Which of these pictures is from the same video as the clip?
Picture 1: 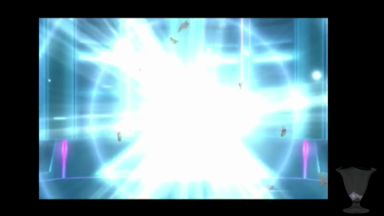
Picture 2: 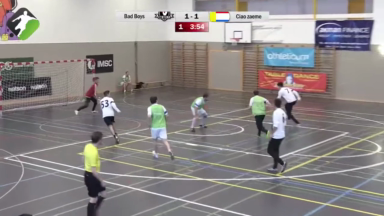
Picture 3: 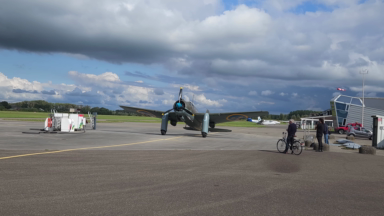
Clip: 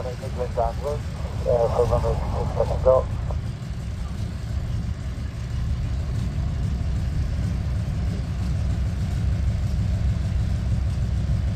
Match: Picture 3